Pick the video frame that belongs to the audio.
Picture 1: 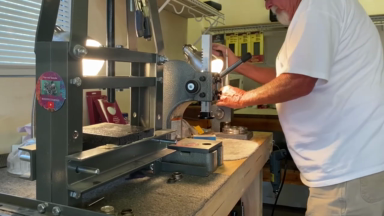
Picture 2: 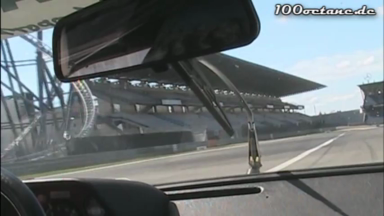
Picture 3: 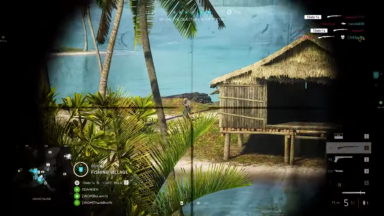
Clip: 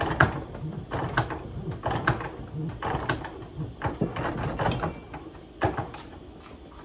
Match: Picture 1